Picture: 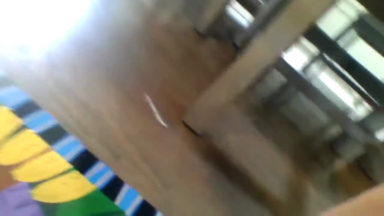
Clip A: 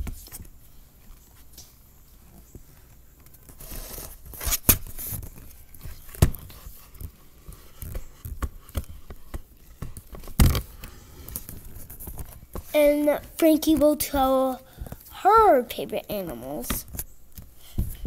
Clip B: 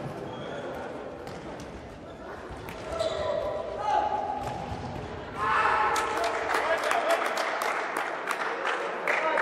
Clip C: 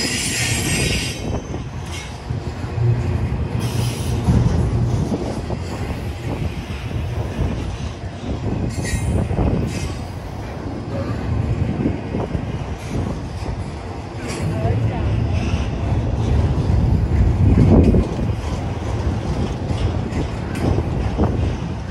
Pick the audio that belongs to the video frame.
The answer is A